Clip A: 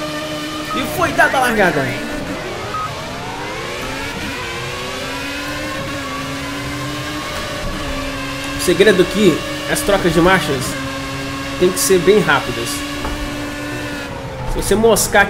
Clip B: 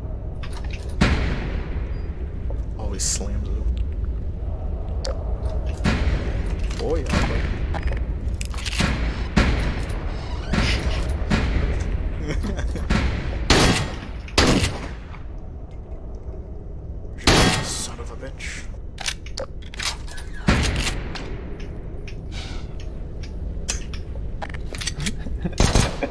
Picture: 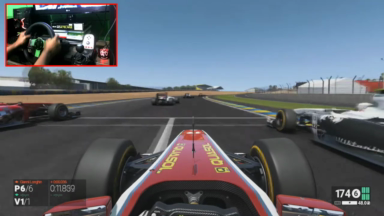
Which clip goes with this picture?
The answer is A